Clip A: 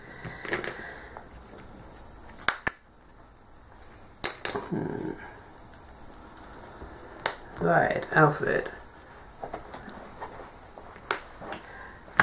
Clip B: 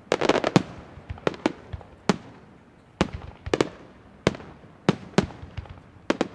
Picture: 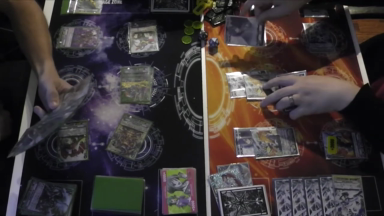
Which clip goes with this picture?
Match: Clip A